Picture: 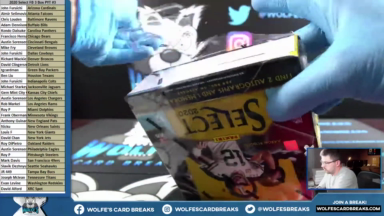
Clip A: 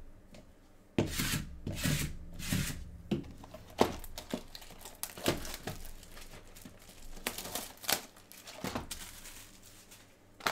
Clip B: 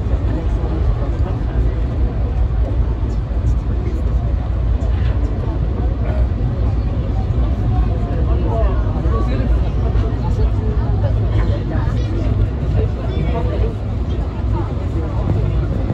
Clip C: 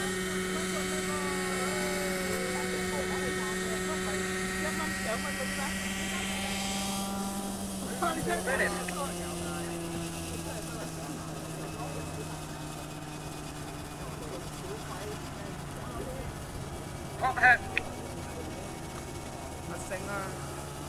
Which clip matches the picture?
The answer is A